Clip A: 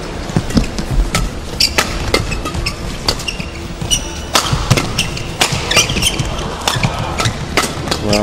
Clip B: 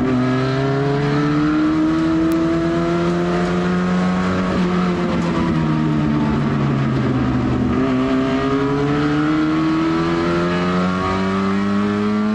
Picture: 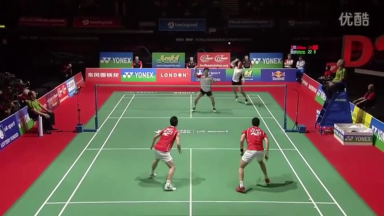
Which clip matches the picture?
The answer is A